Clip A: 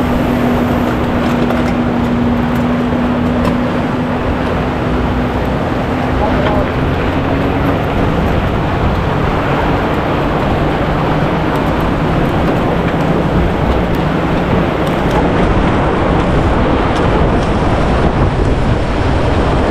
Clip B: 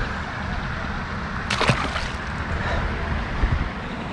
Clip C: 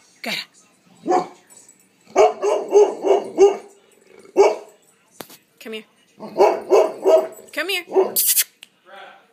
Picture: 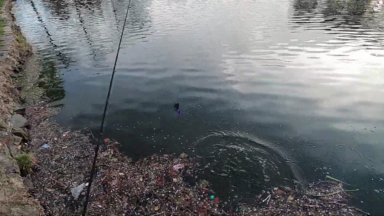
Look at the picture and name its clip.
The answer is B